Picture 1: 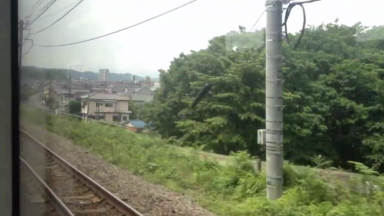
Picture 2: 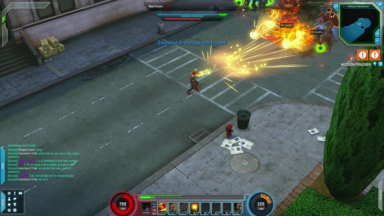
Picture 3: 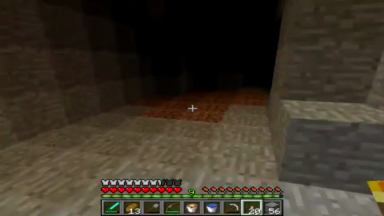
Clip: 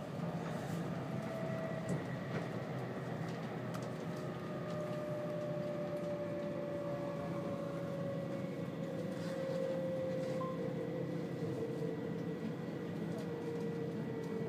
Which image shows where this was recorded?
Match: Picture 1